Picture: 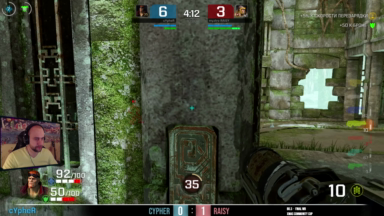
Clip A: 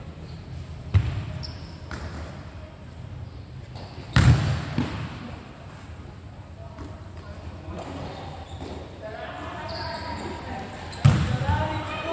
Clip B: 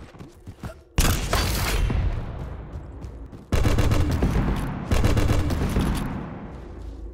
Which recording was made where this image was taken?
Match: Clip B